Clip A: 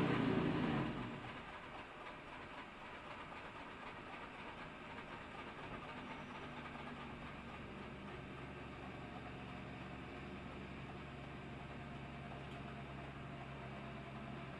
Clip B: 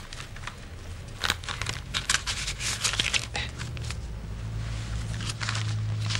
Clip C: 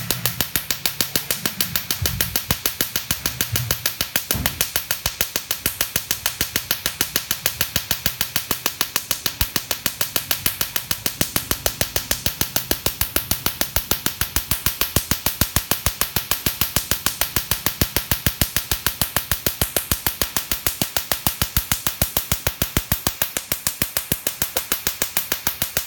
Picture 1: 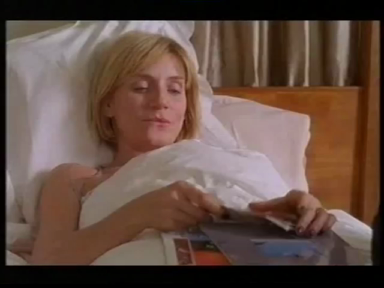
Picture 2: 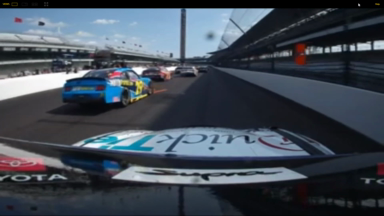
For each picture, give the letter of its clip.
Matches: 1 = B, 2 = A